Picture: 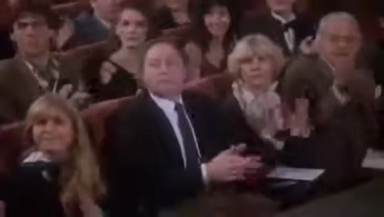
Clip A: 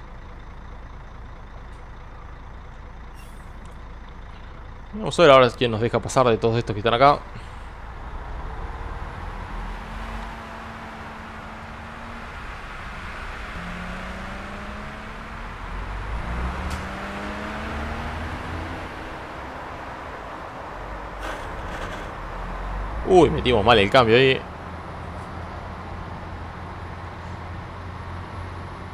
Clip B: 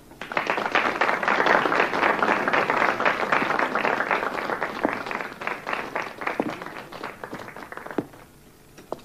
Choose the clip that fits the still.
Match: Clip B